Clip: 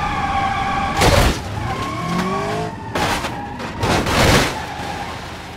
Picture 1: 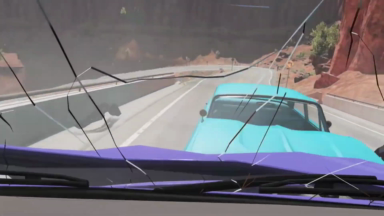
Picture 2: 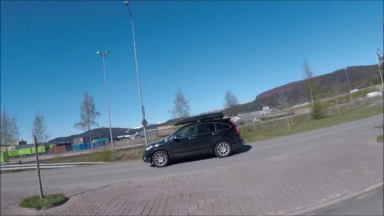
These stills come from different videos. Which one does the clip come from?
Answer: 1